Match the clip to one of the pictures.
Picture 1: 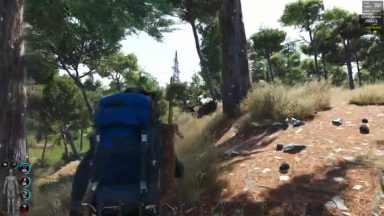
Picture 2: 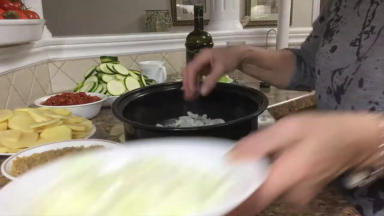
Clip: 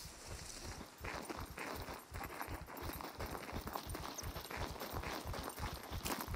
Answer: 1